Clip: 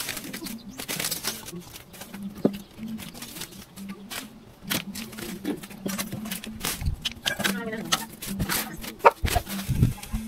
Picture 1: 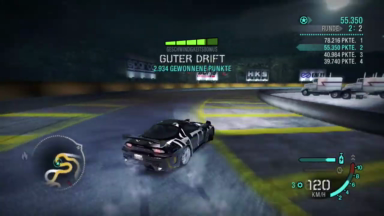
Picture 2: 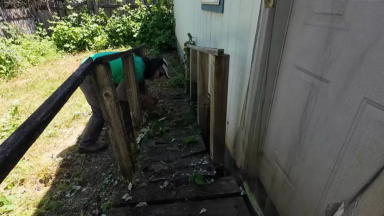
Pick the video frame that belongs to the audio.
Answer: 2